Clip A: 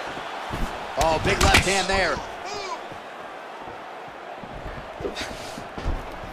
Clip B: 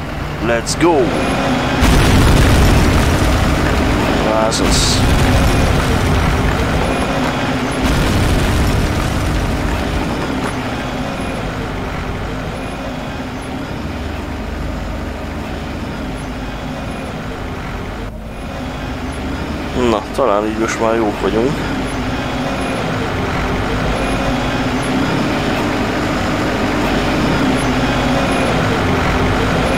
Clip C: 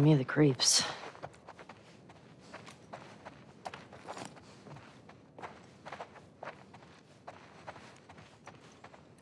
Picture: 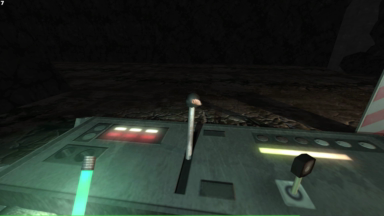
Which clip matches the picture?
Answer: B